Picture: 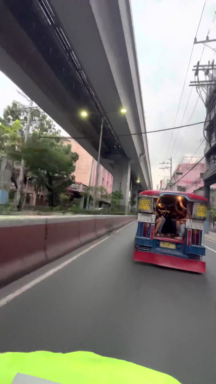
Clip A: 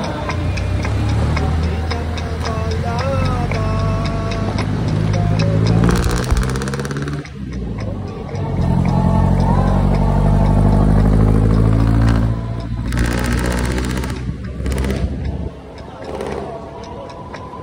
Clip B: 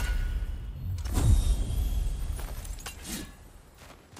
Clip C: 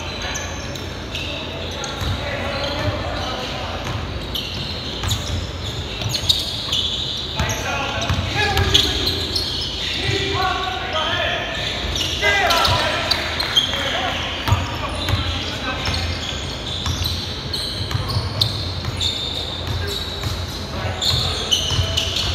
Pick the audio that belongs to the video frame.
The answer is A